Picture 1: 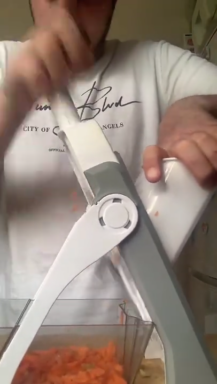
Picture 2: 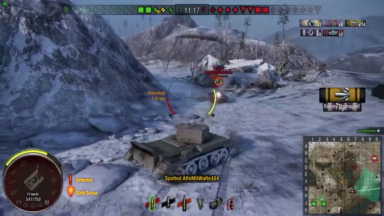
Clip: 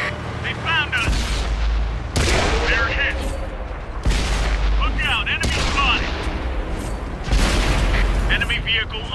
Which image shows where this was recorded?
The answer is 2